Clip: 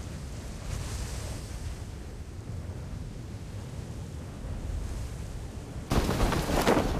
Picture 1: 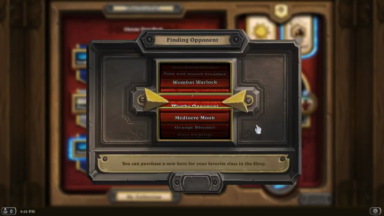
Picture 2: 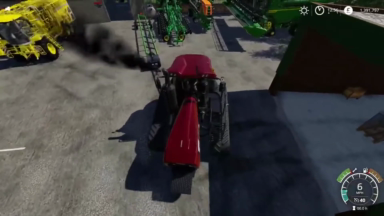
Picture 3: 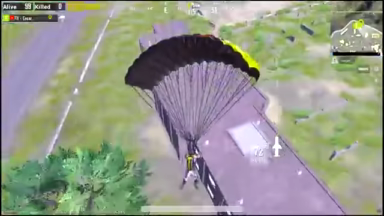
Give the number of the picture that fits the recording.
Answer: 3